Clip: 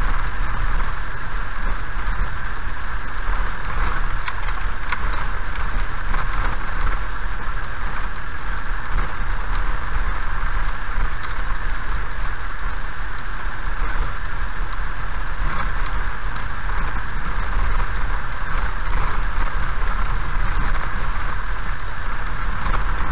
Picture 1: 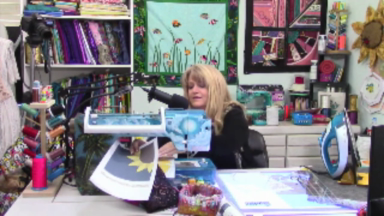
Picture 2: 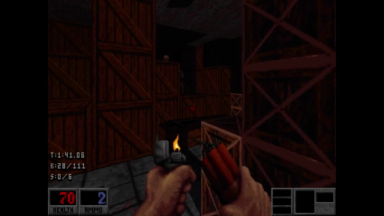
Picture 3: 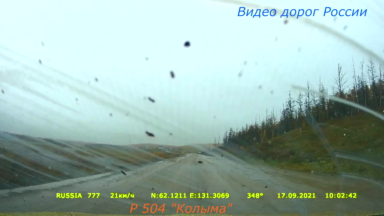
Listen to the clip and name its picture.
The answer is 3